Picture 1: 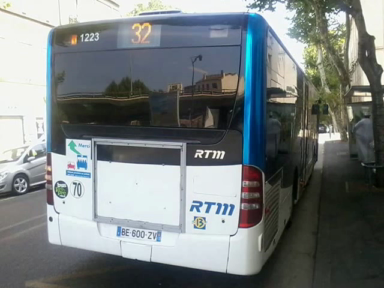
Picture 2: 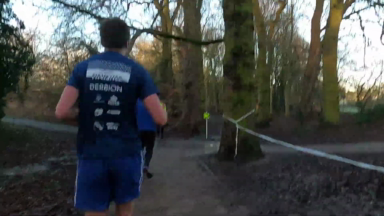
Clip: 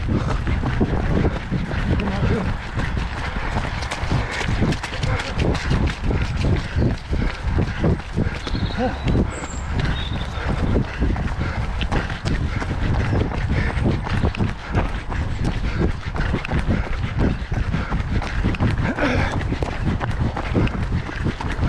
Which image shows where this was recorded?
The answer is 2